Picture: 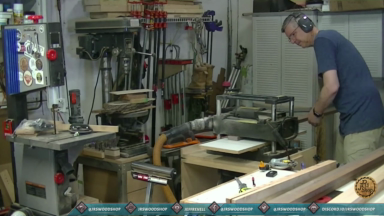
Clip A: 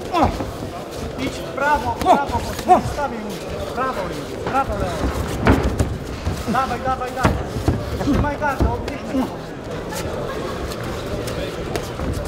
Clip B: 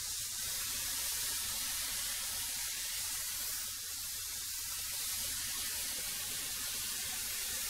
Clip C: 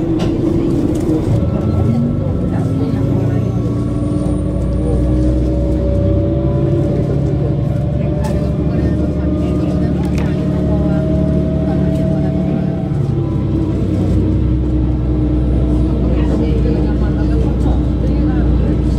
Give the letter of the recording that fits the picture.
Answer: B